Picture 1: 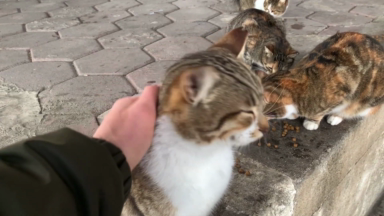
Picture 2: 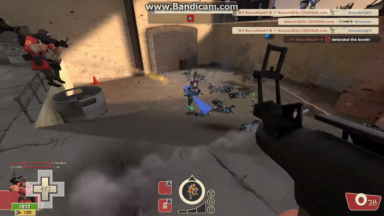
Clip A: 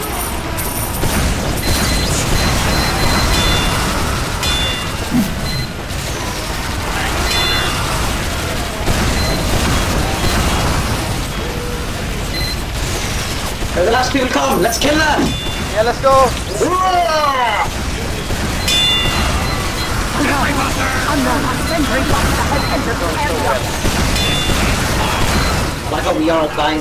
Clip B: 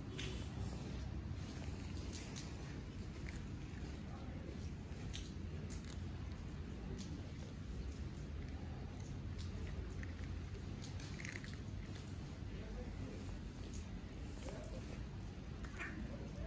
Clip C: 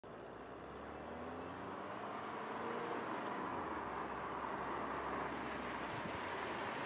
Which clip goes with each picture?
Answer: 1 B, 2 A